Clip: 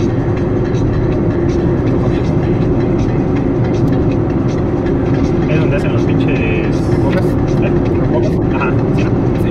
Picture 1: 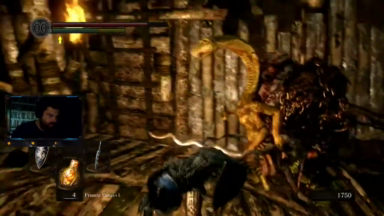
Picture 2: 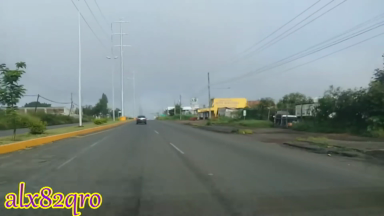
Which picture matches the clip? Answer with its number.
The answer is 2